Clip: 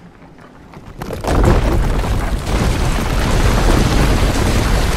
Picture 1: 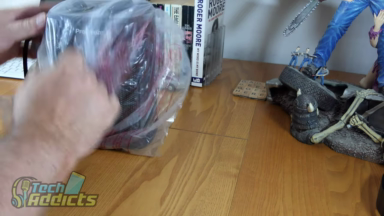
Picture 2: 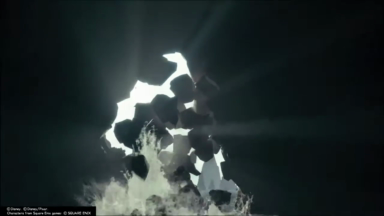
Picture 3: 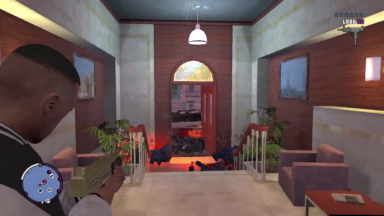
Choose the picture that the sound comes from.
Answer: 2